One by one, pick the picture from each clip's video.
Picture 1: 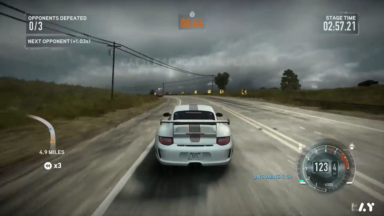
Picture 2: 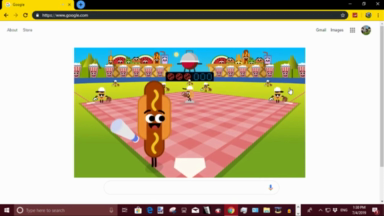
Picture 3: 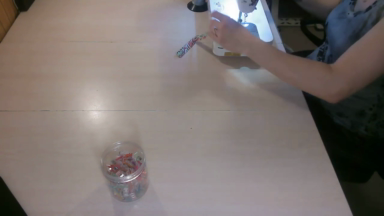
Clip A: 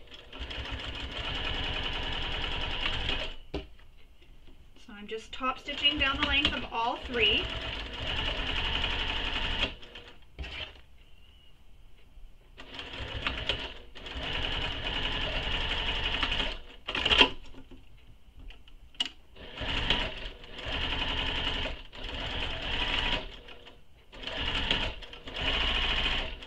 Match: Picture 3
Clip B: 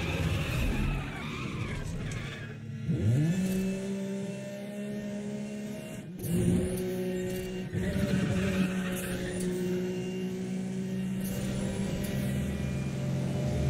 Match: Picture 1